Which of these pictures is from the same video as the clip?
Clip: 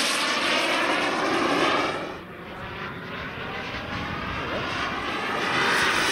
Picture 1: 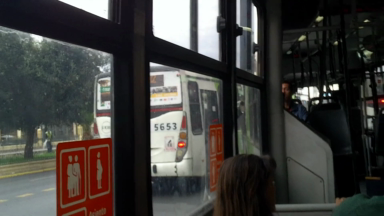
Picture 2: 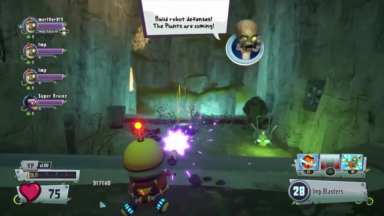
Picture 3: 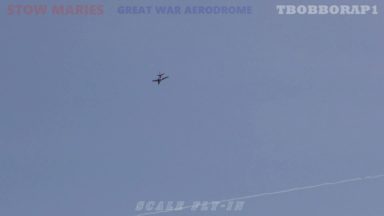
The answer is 3